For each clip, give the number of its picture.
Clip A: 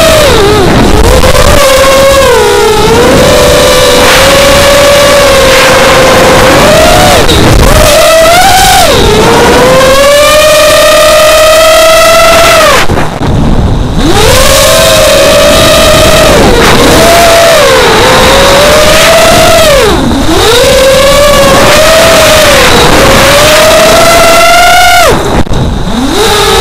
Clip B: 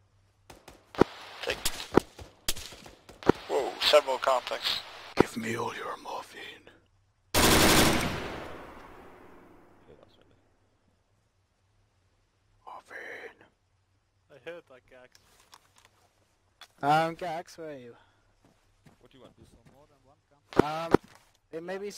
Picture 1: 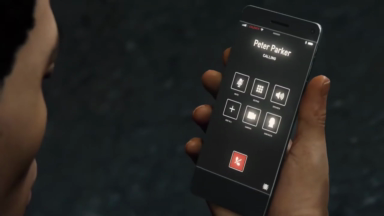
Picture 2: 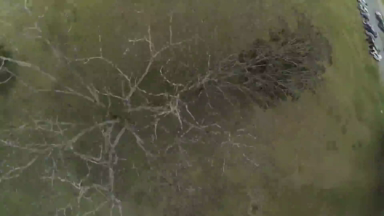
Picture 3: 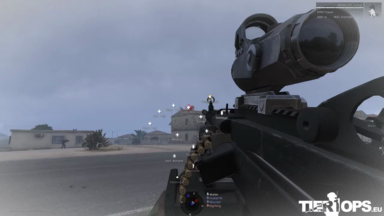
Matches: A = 2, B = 3